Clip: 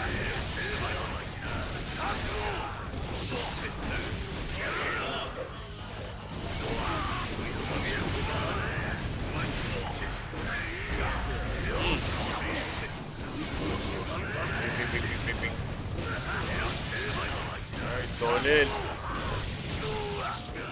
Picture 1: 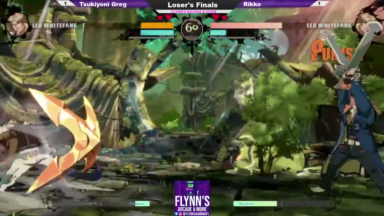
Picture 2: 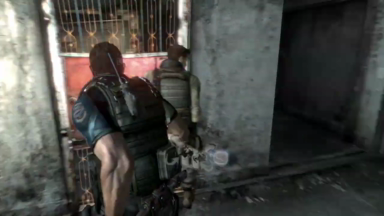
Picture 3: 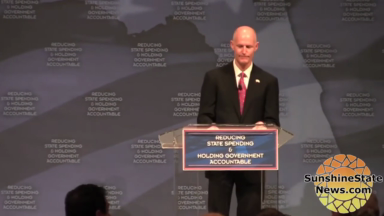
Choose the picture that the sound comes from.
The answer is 1